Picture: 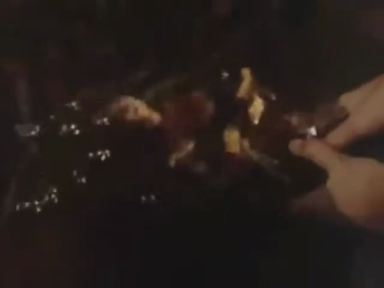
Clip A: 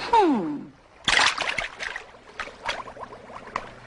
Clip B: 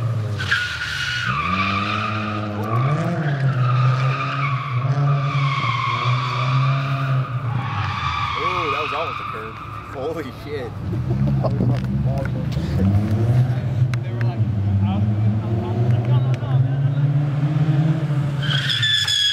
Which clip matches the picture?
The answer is A